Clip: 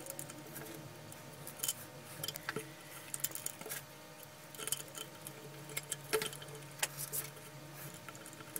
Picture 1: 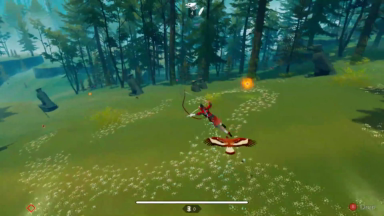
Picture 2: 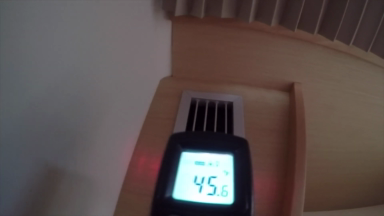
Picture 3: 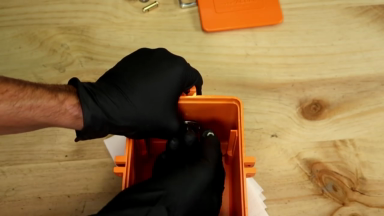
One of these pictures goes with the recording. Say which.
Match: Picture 3